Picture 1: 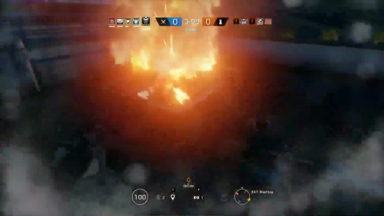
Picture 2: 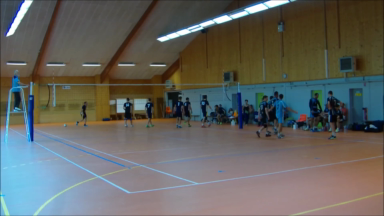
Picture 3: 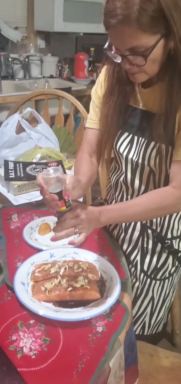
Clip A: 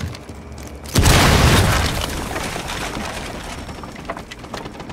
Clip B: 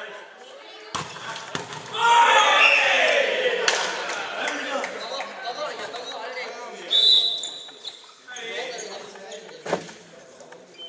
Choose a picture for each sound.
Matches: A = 1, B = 2